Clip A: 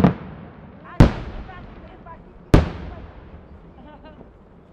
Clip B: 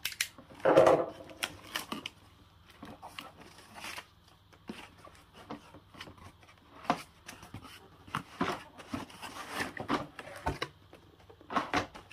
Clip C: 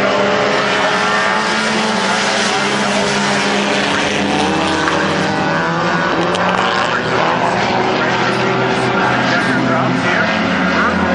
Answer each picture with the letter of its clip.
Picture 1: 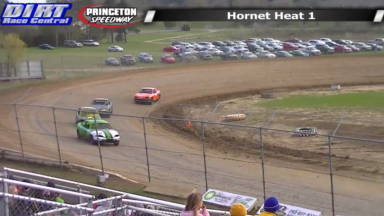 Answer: C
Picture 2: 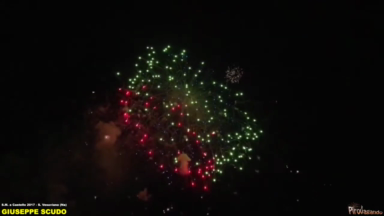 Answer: A